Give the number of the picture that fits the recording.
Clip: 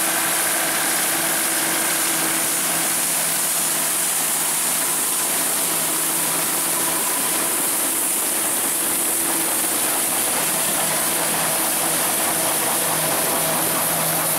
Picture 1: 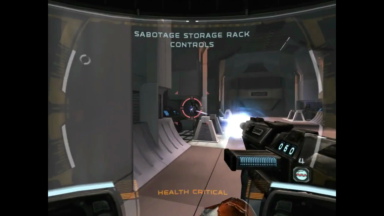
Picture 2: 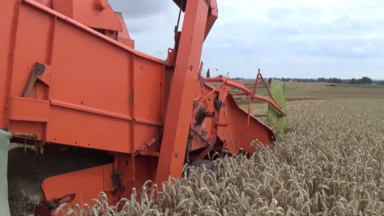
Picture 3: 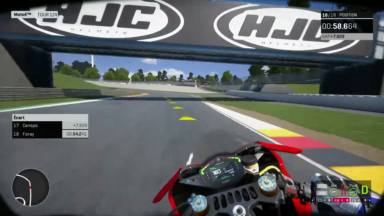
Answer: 2